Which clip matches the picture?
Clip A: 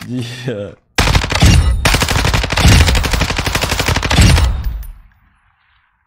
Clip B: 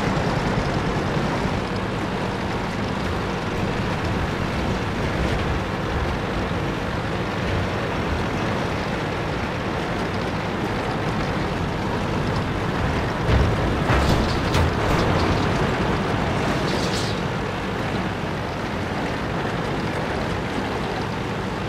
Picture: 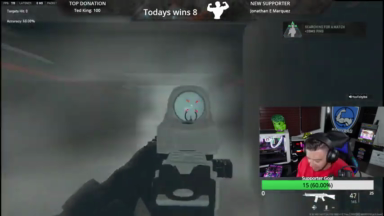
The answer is A